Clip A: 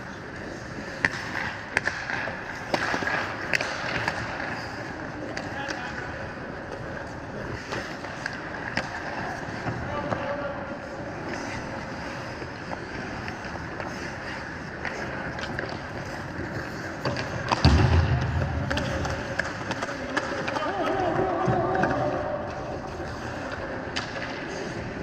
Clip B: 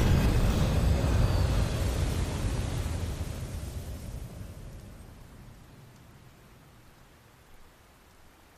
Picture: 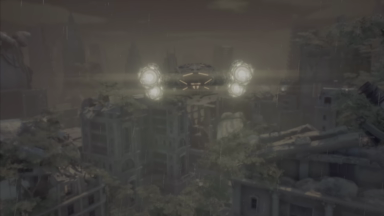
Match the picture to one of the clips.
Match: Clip B